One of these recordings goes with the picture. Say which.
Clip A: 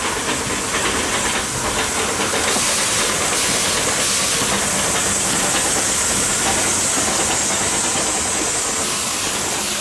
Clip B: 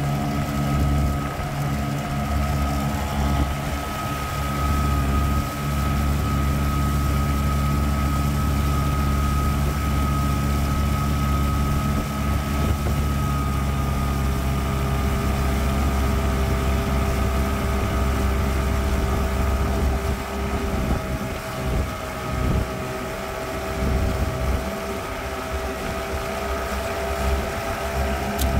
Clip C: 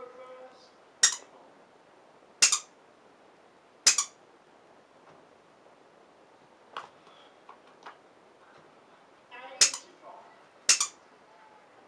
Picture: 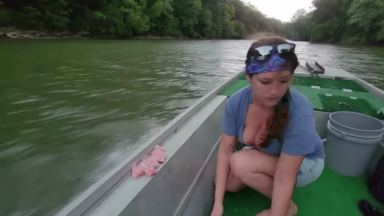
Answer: B